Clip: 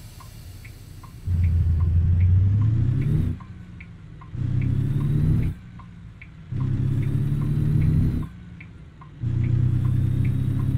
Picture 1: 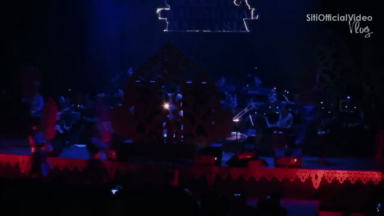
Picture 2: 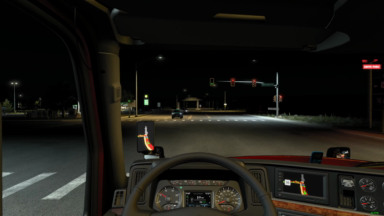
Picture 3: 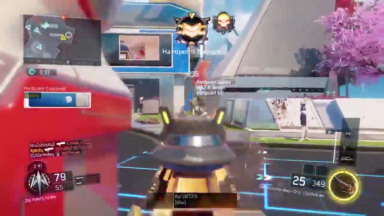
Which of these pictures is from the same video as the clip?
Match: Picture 2